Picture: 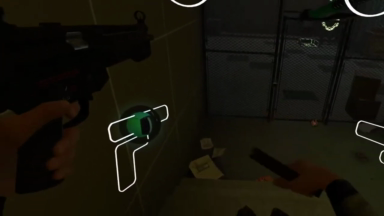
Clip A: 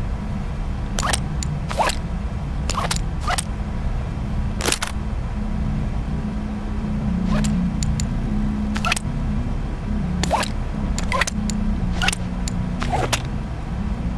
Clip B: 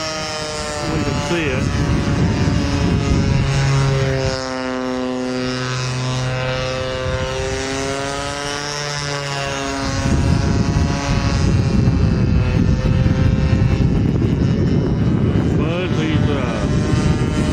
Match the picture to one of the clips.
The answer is A